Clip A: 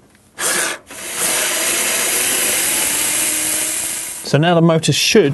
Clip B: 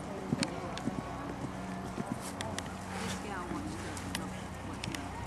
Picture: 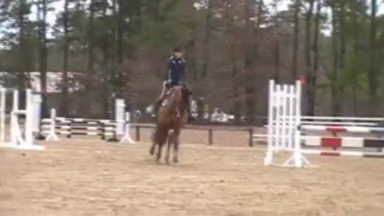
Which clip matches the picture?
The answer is B